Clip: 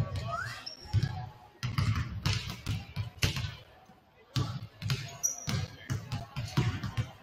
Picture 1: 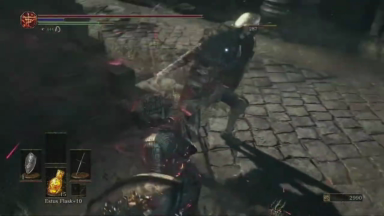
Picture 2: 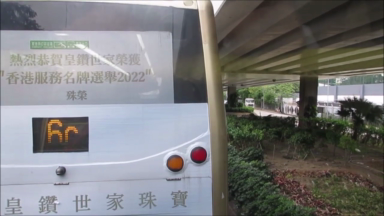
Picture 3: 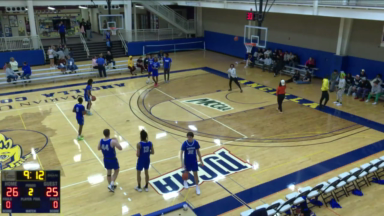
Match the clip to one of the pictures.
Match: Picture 3